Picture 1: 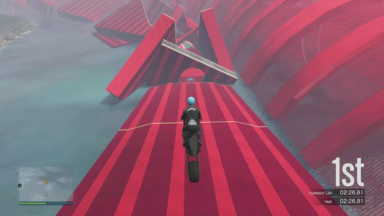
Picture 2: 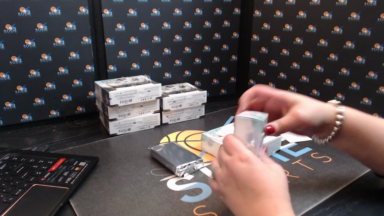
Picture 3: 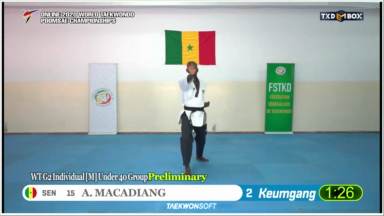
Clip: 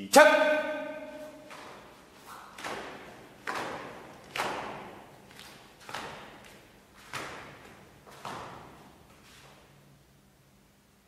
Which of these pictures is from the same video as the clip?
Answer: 3